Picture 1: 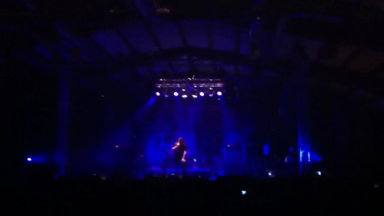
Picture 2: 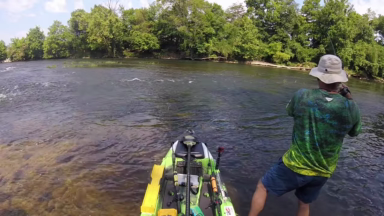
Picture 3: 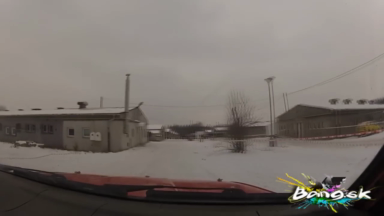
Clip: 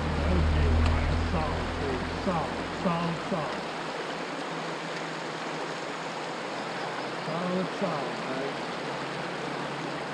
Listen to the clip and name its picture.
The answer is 2